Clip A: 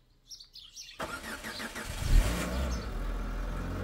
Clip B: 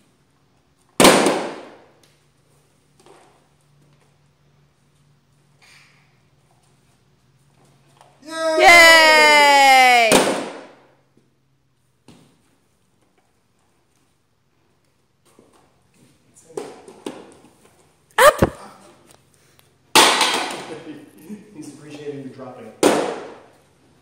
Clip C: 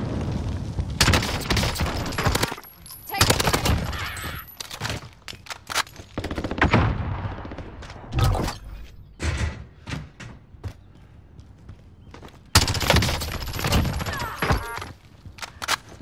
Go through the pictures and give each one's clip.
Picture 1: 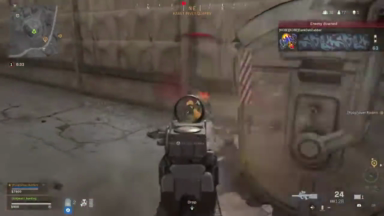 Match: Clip C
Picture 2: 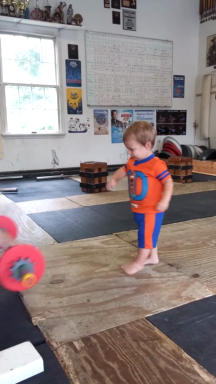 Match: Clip B